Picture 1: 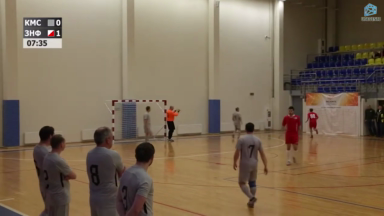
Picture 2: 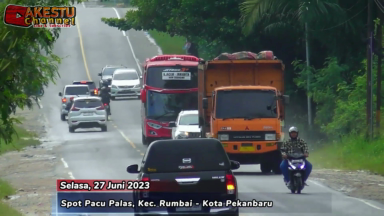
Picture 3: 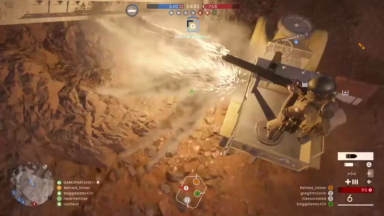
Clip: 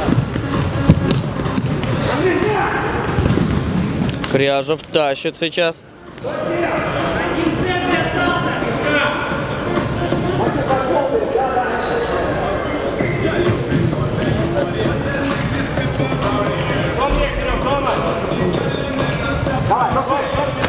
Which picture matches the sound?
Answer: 1